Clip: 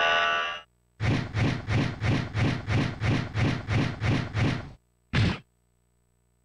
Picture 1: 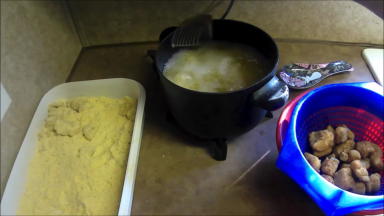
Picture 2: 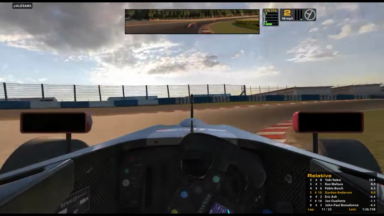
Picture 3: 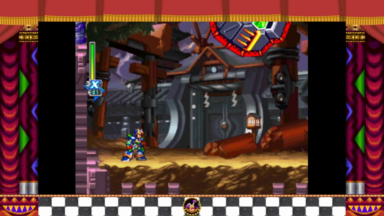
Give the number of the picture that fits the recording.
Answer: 3